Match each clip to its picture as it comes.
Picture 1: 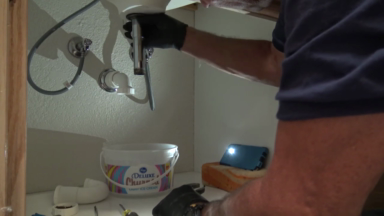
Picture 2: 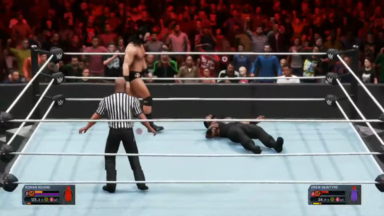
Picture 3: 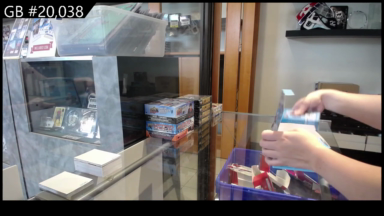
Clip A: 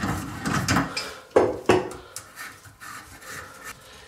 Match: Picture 1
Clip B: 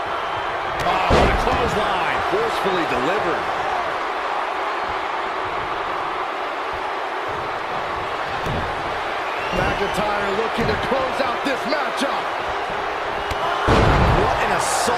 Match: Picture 2